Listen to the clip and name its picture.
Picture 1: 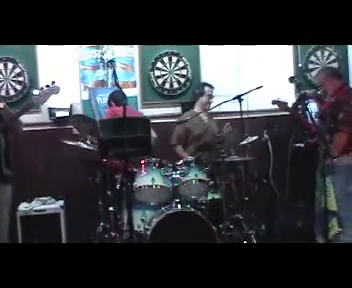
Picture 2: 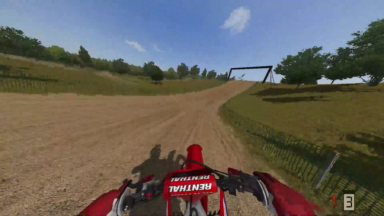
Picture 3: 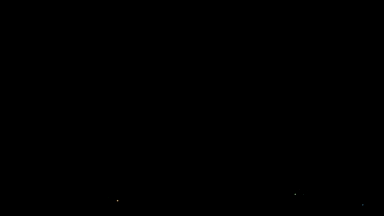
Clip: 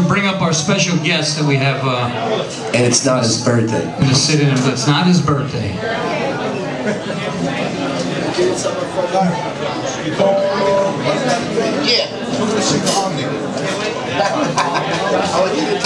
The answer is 1